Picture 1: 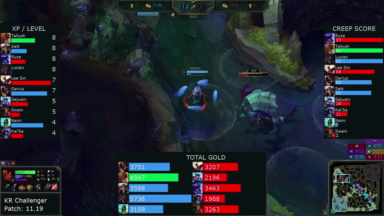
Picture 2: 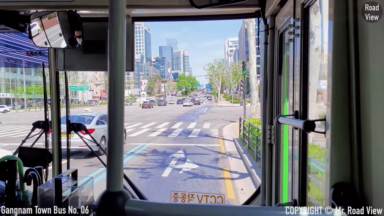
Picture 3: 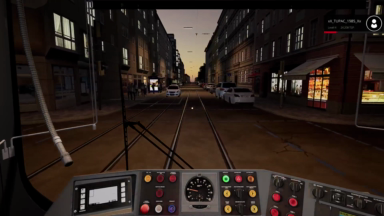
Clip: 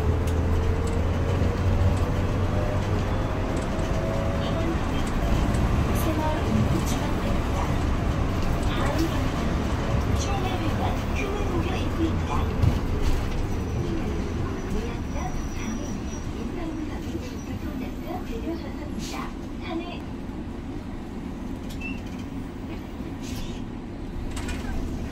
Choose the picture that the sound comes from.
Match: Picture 2